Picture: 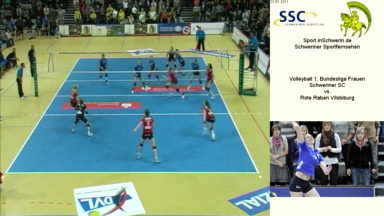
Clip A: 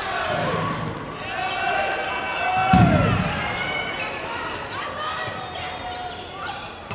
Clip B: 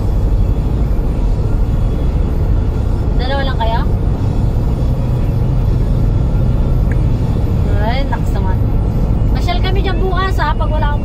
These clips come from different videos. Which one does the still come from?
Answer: A